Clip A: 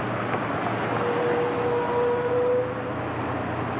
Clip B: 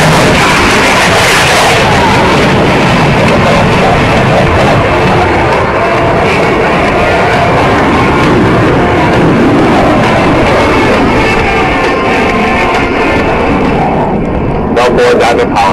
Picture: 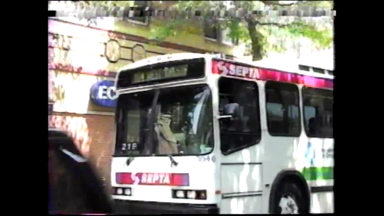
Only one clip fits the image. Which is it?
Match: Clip A